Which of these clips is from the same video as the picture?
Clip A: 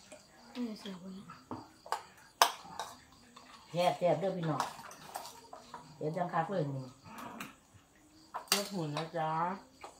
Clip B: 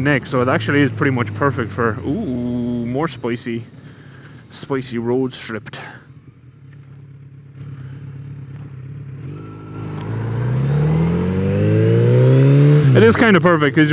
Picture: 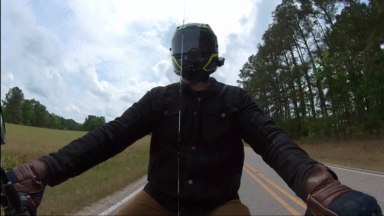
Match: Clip B